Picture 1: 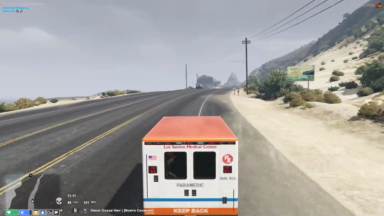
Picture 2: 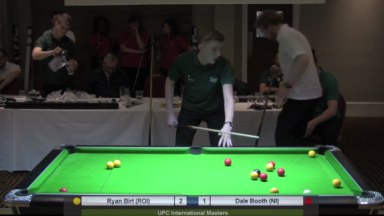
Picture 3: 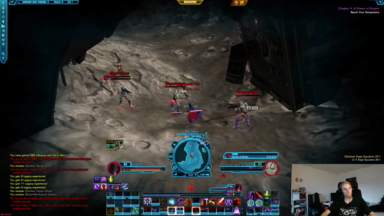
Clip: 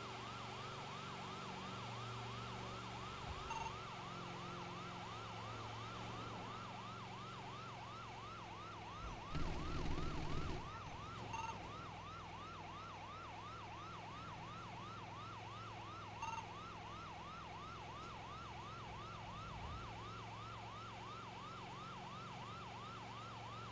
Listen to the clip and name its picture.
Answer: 1